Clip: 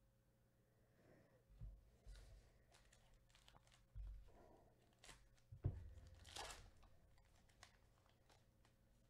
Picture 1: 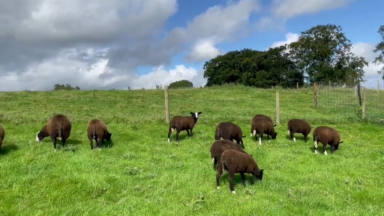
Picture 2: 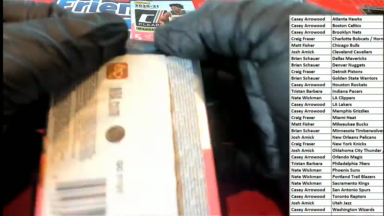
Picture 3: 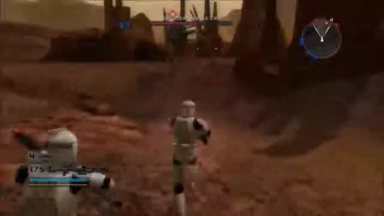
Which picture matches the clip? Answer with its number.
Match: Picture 2